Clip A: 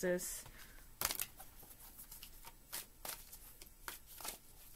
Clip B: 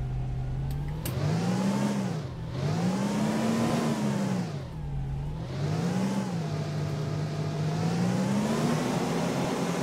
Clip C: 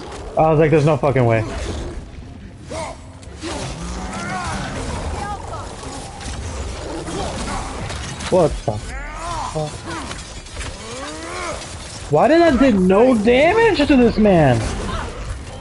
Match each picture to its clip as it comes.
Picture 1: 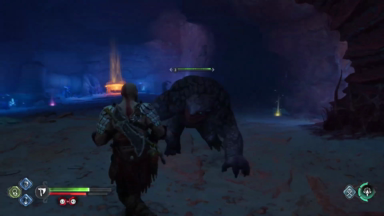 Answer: C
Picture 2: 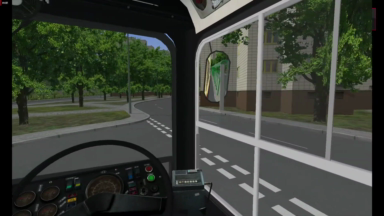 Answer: B